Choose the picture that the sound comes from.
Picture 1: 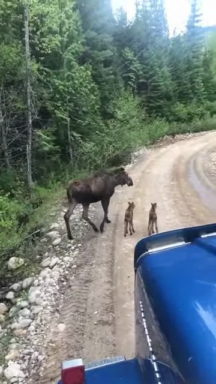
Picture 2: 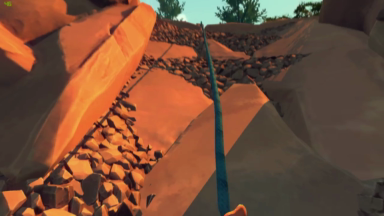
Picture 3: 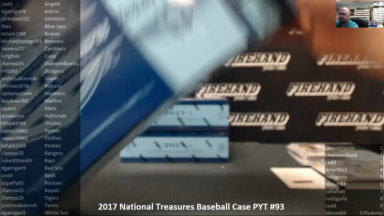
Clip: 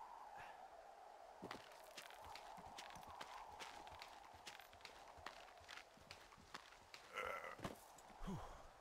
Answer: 2